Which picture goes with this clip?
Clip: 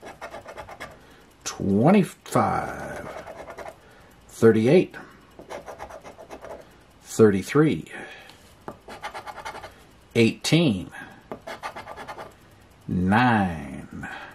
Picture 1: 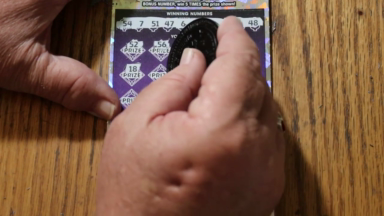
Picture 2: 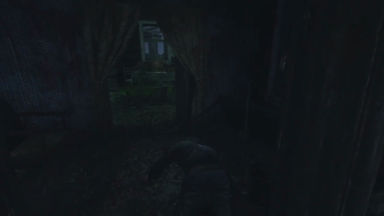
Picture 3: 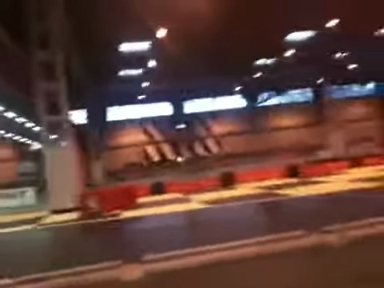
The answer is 1